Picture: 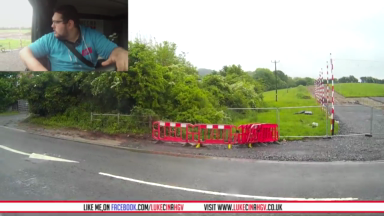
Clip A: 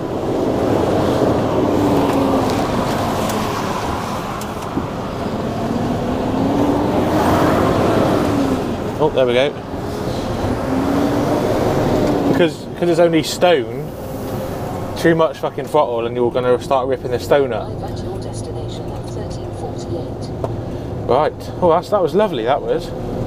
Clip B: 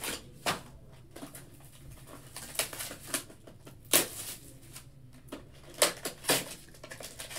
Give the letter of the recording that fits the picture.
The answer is A